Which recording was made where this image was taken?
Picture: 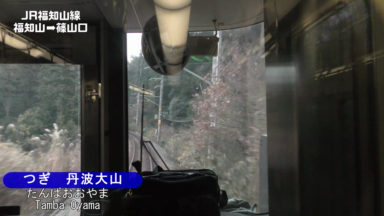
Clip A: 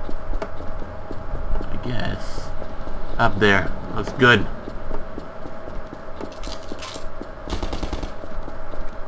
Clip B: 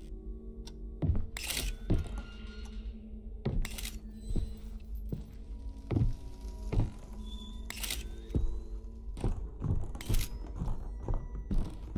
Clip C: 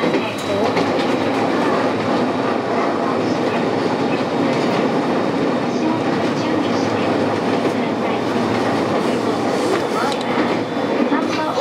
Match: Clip C